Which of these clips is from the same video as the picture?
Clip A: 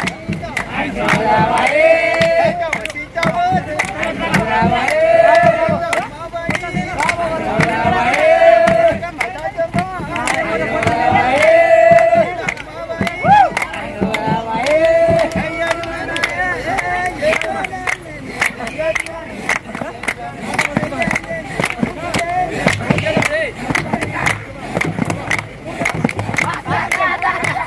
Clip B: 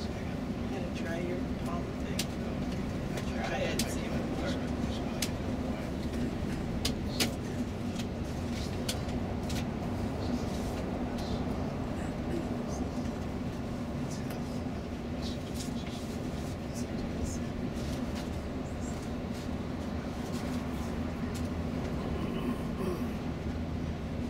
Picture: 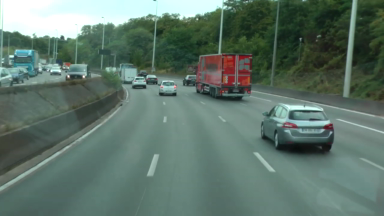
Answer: B